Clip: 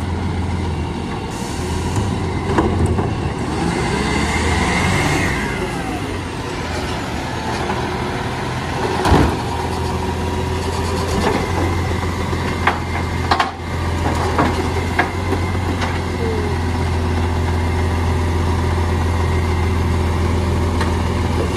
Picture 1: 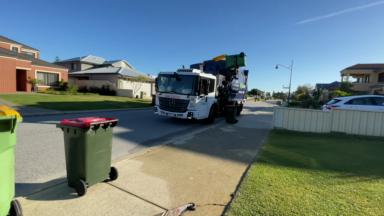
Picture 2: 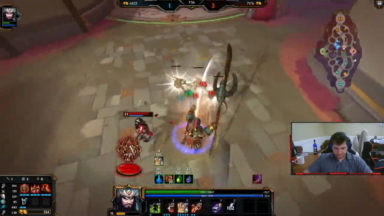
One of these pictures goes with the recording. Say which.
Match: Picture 1